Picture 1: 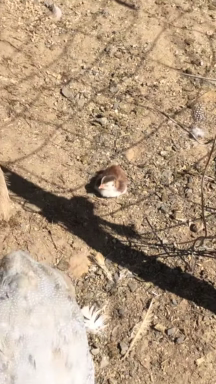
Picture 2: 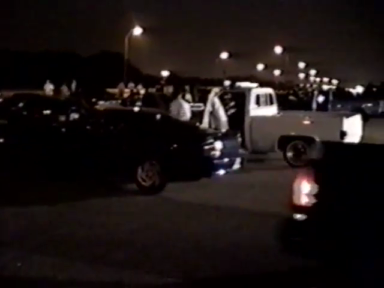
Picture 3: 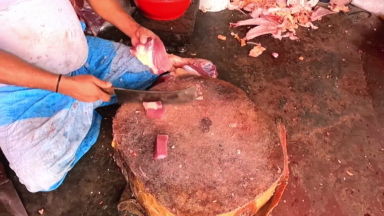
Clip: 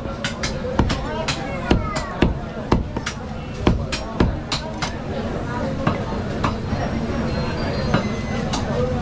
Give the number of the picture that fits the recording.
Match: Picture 3